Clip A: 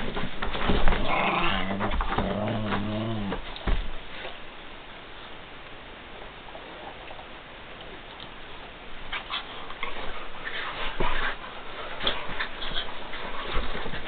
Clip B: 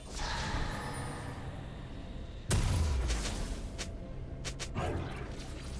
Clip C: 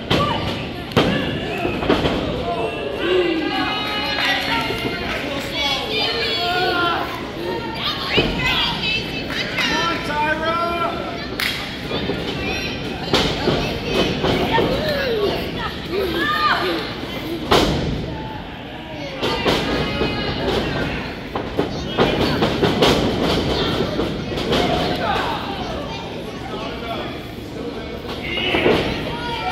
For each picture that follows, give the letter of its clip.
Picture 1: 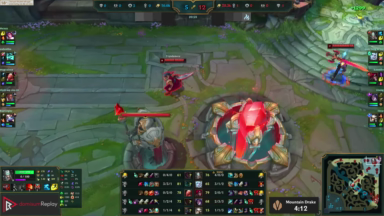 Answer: B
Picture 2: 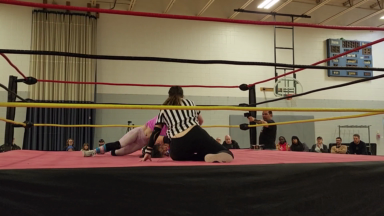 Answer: C